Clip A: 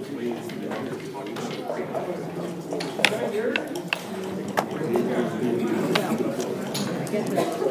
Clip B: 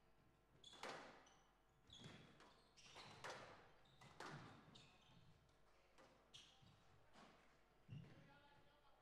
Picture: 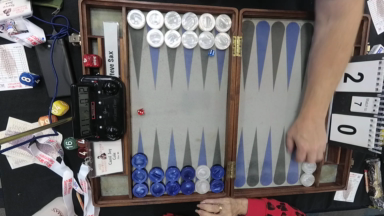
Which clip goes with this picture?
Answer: A